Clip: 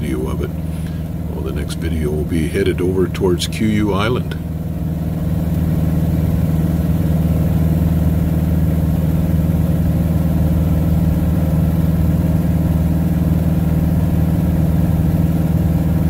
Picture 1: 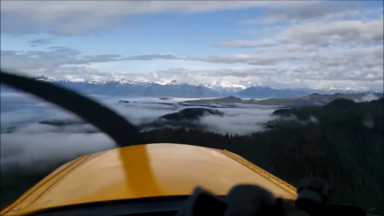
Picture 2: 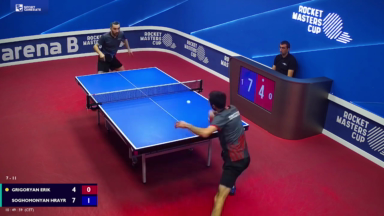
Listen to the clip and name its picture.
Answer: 1